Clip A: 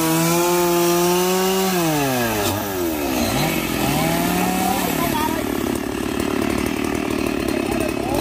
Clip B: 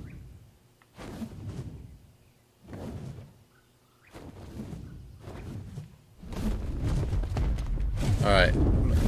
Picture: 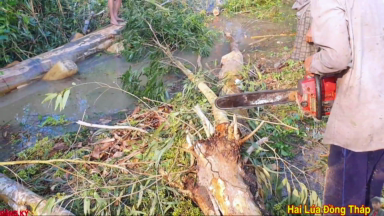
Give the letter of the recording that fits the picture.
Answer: A